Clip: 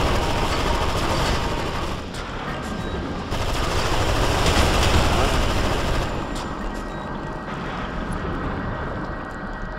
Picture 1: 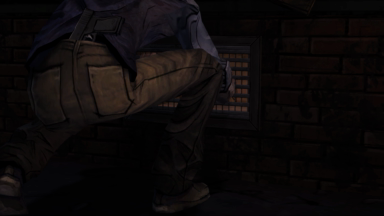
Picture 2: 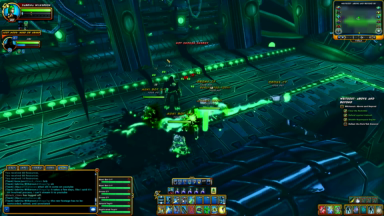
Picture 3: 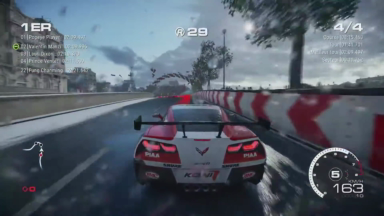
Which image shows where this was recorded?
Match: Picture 2